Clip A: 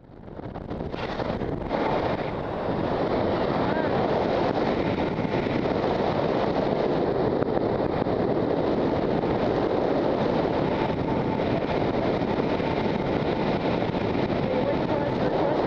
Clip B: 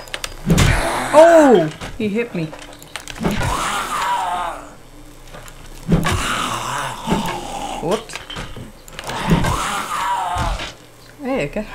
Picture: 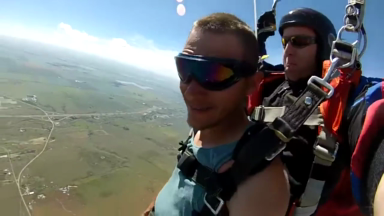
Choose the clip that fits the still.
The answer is A